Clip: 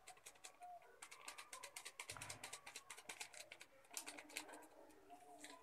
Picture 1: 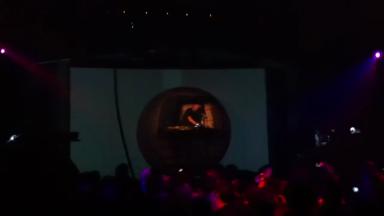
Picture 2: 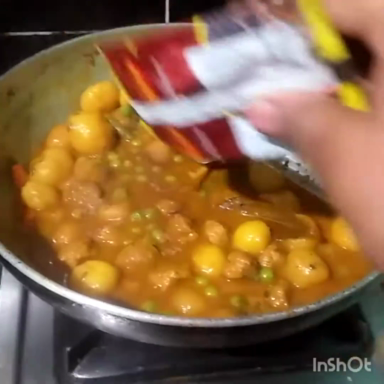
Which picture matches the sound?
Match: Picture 2